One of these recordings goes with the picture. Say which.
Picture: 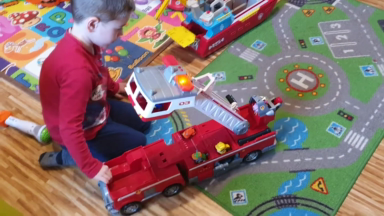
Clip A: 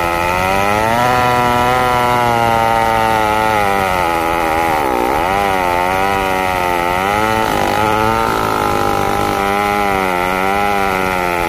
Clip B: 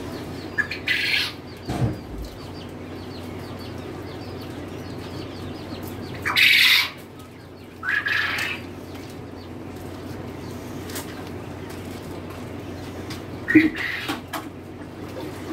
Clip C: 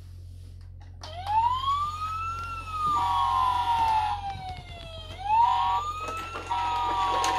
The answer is C